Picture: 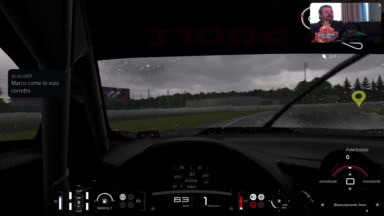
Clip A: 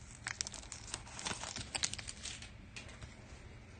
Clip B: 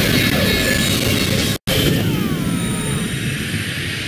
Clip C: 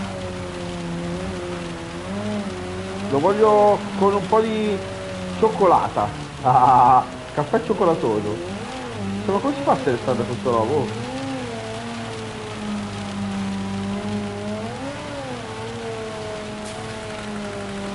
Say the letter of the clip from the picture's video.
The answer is C